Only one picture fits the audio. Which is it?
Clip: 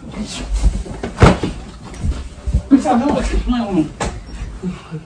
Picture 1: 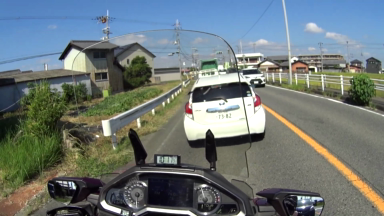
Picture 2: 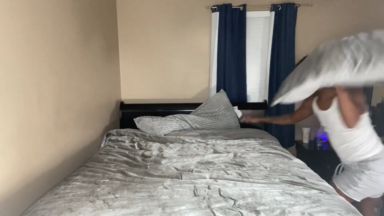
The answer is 2